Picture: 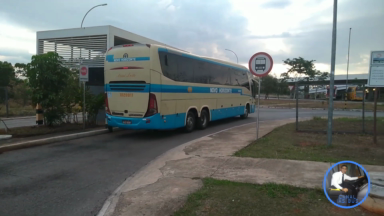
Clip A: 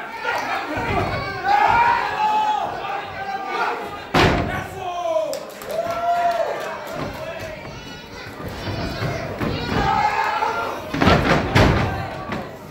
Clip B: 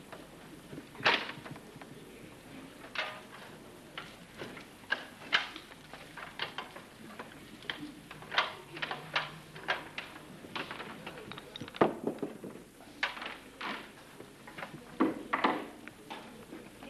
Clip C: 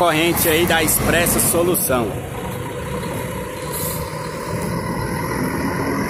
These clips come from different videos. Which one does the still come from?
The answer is C